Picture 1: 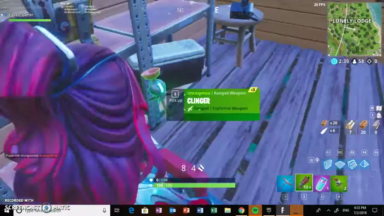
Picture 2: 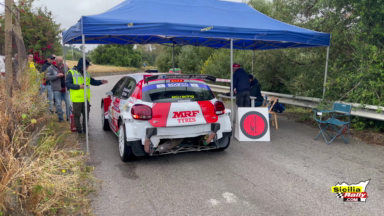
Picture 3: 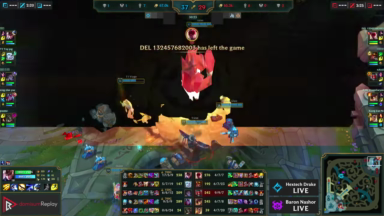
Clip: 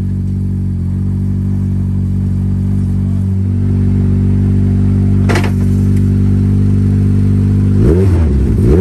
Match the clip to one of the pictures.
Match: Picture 2